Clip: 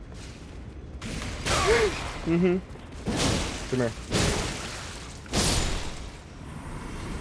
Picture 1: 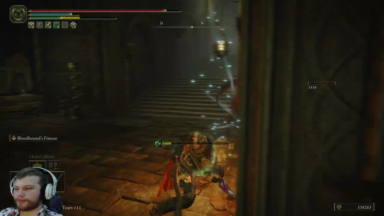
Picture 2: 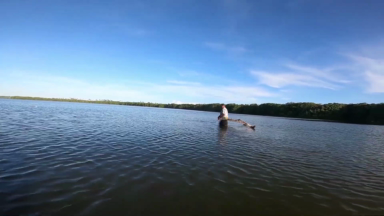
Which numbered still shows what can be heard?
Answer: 1